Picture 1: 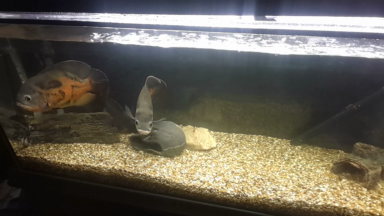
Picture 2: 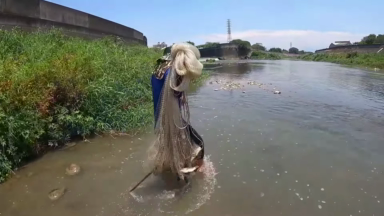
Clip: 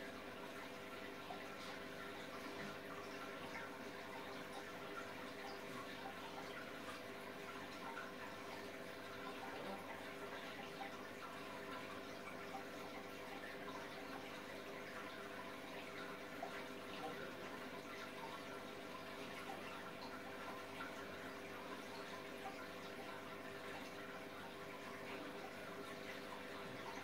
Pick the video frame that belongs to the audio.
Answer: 1